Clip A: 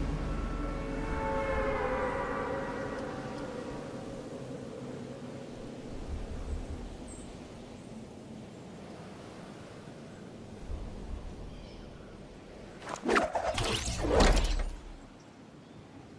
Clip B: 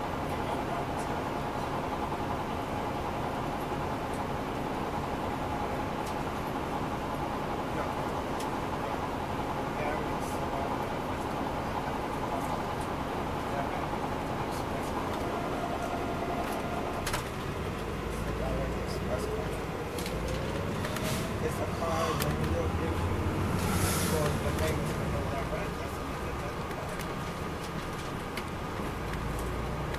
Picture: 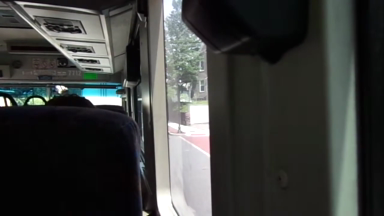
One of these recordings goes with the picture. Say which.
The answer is B